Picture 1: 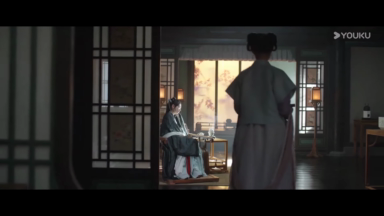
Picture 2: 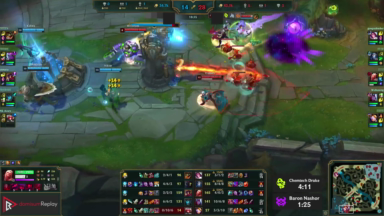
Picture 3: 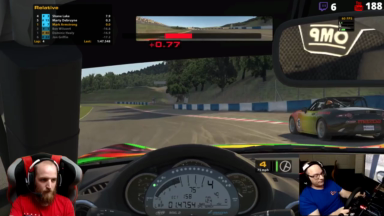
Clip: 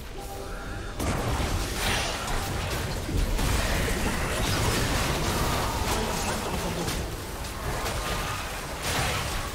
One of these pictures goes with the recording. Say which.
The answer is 2